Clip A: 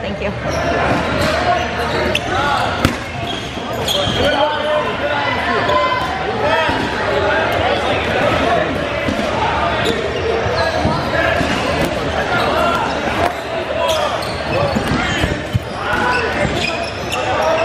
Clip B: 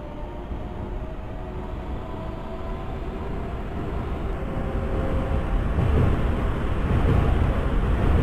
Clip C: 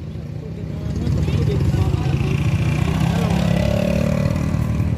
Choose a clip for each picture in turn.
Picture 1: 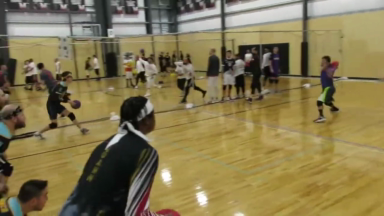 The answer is A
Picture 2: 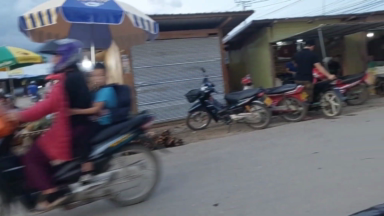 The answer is C